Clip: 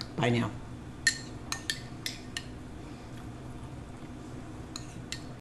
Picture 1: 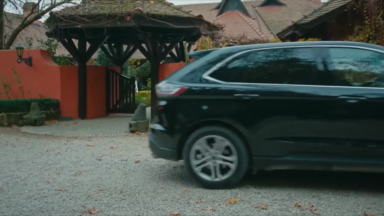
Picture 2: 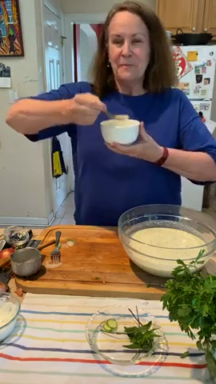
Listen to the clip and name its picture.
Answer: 2